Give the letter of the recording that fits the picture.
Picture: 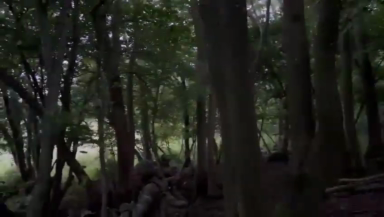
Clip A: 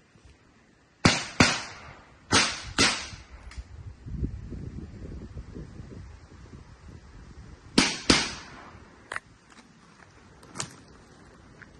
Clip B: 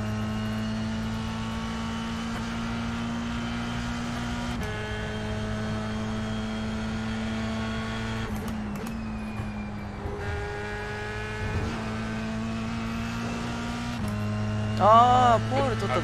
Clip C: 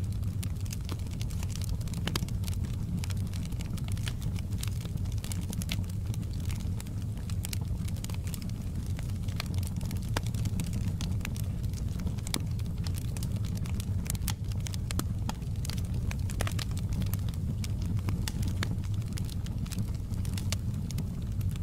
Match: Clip A